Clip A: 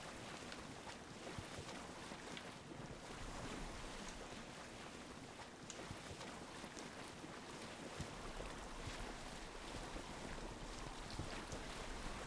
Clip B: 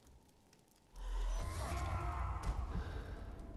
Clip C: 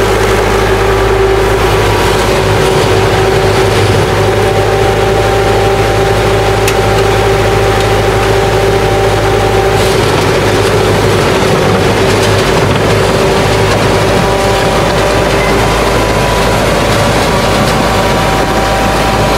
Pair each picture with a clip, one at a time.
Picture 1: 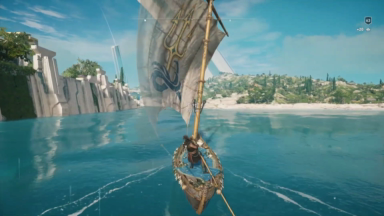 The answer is A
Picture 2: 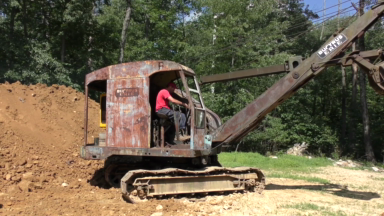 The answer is C